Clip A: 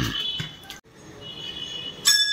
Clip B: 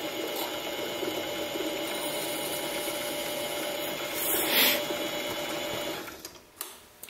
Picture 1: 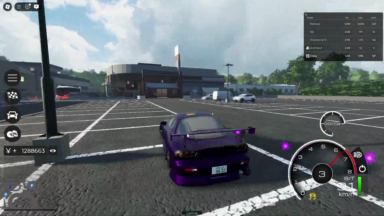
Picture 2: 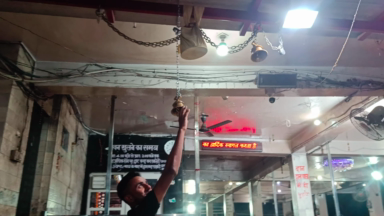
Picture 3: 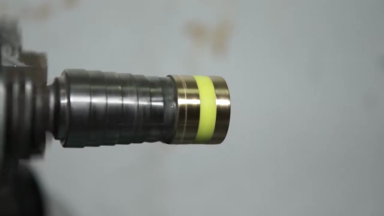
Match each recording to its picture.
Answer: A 2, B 3